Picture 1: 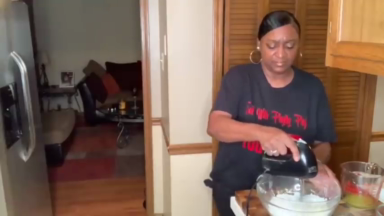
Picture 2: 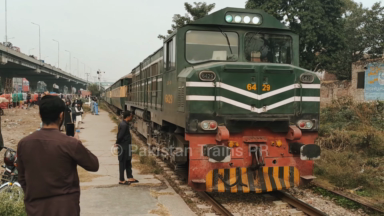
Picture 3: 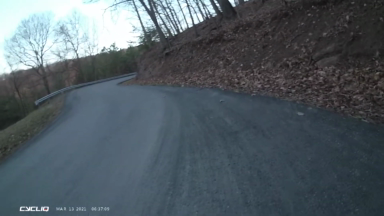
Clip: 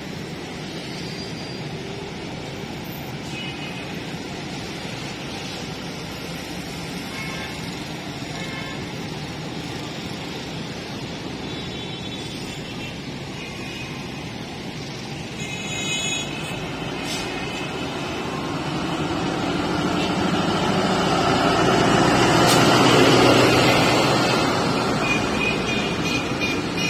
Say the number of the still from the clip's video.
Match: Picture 2